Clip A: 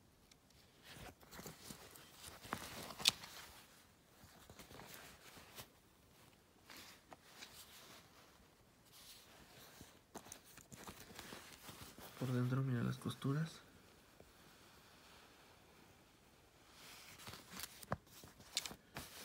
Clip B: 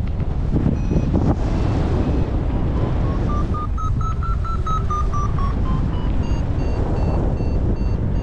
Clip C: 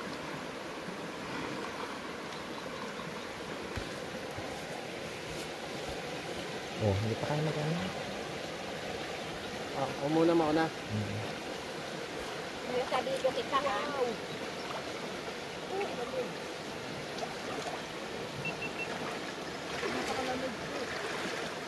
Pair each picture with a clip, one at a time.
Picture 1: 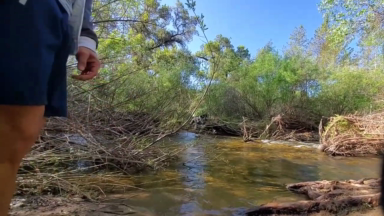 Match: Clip C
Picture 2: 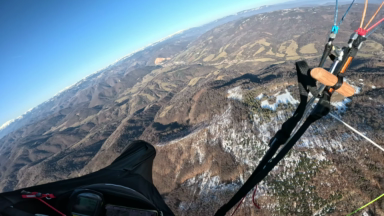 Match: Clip B